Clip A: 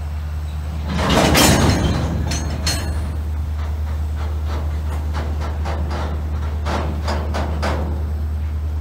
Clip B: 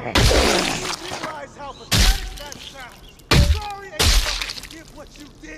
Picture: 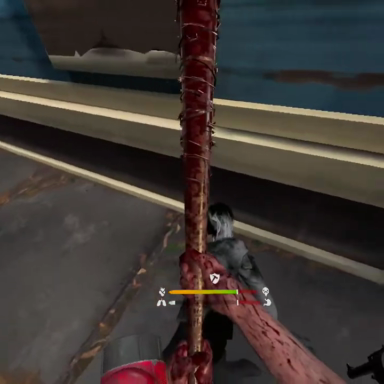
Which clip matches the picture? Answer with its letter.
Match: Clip B